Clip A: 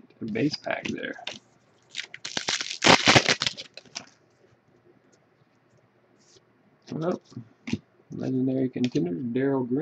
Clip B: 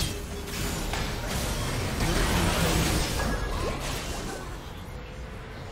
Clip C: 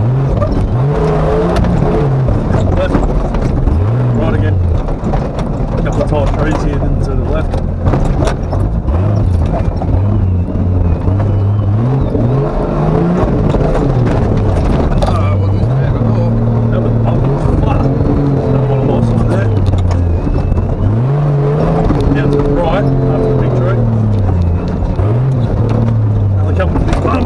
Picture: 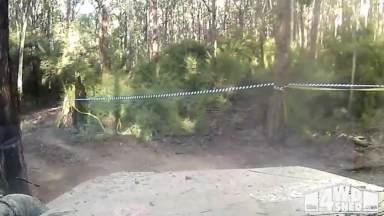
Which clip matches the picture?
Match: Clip C